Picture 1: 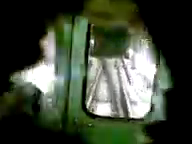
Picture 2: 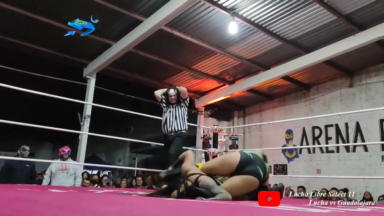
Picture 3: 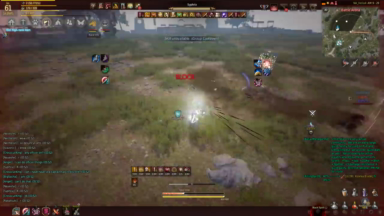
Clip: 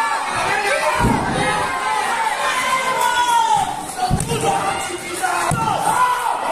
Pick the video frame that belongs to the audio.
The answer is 2